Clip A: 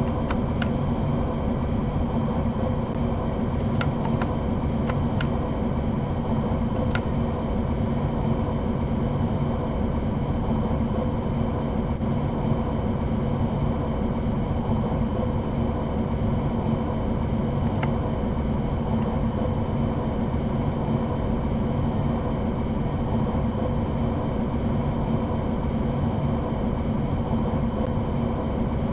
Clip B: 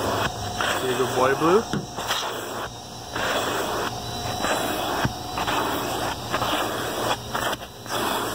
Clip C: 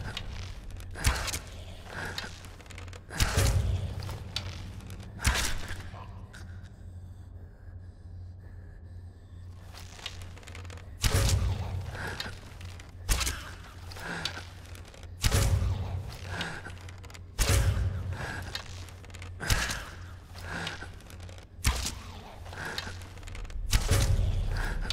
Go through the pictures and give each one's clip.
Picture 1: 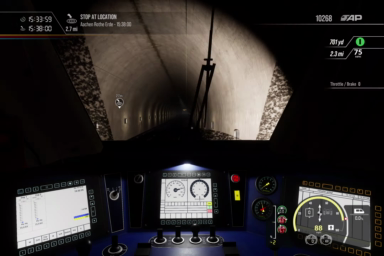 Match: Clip A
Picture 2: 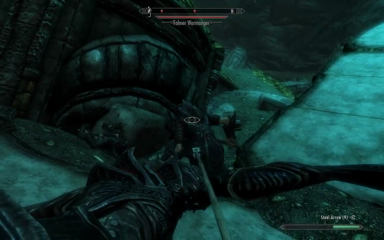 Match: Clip C